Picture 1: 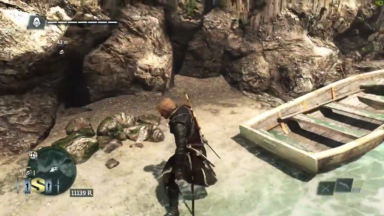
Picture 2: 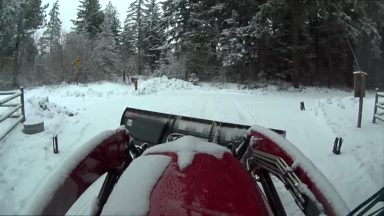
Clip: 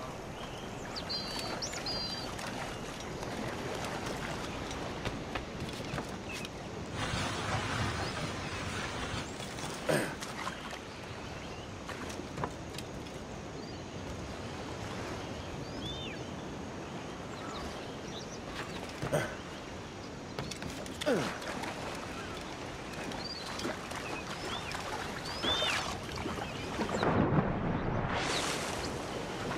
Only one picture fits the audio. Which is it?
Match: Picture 1